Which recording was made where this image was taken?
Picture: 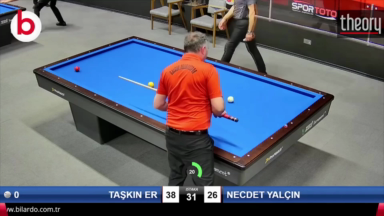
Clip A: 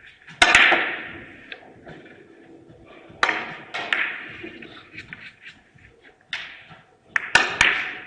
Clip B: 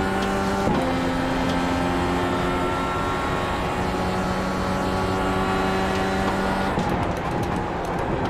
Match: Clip A